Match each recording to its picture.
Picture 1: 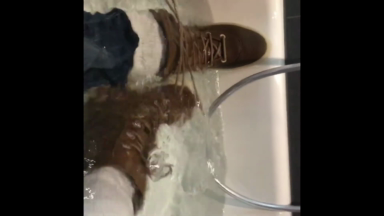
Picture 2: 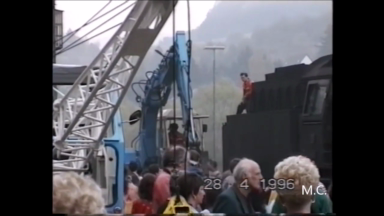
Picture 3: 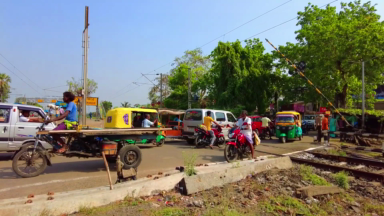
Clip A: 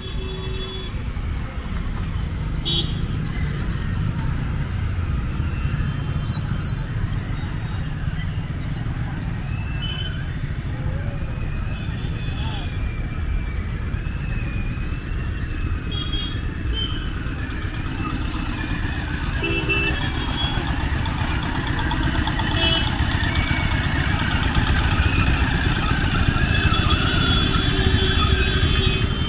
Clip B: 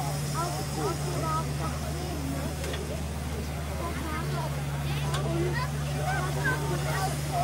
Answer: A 3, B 2